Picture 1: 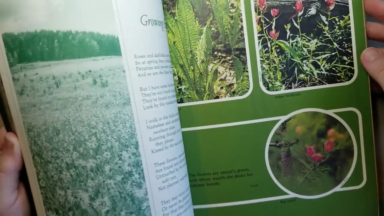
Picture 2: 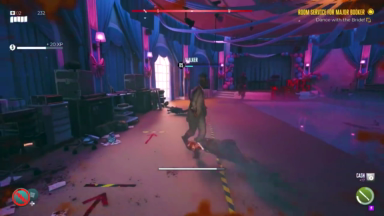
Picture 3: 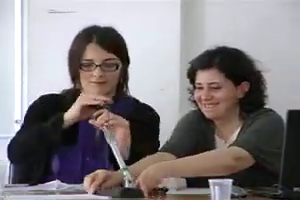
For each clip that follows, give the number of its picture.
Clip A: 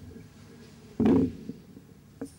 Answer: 3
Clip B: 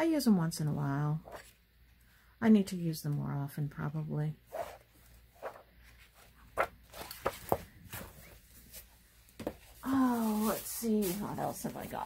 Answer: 1